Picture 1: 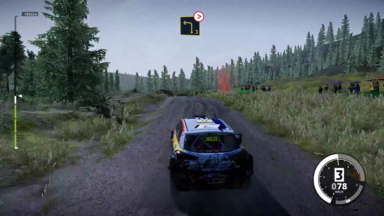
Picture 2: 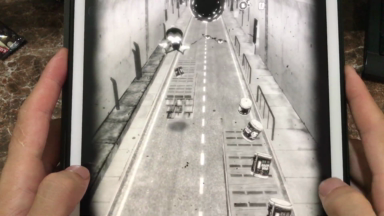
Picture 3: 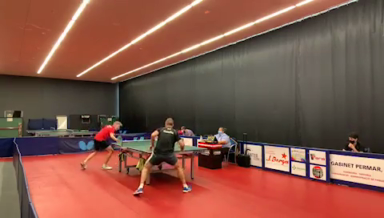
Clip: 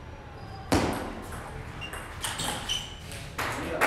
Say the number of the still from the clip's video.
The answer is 3